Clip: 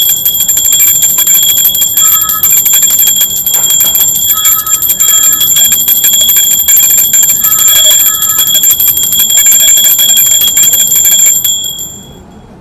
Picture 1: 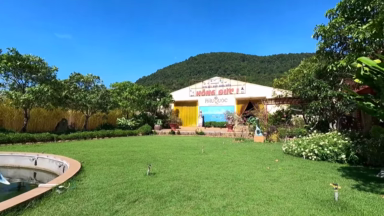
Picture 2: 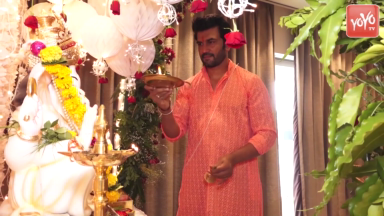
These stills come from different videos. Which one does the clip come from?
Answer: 2